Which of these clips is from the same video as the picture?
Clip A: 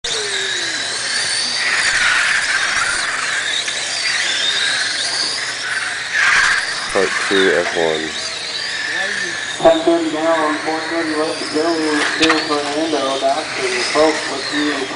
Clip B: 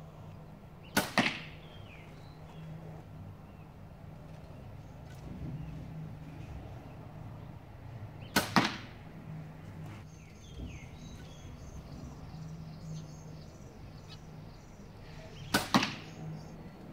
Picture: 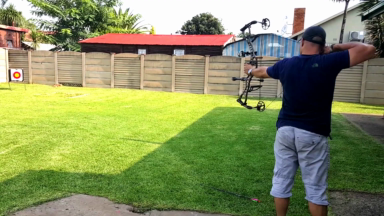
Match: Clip B